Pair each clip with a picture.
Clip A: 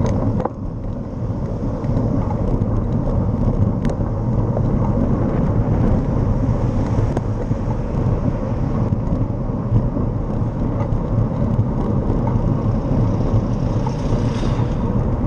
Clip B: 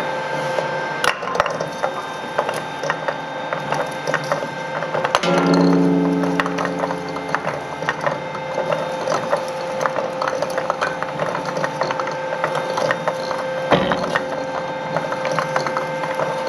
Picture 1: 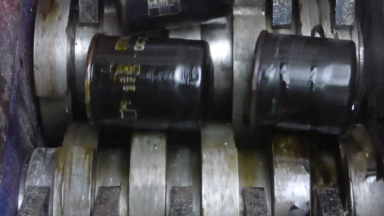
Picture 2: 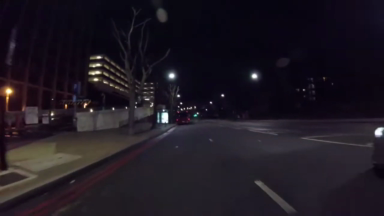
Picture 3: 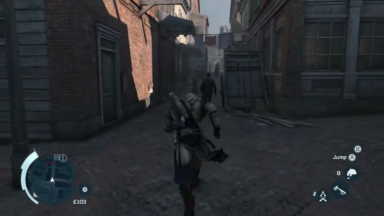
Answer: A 2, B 1